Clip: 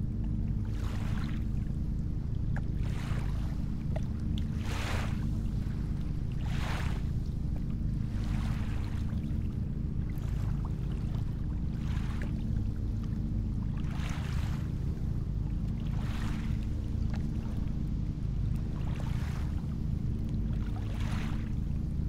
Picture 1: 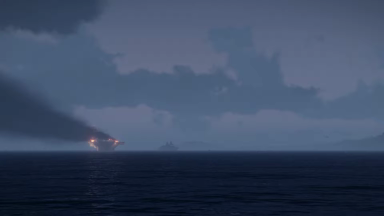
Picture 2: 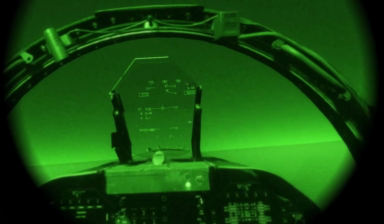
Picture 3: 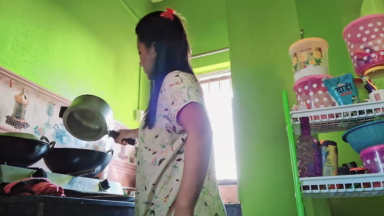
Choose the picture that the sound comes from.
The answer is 1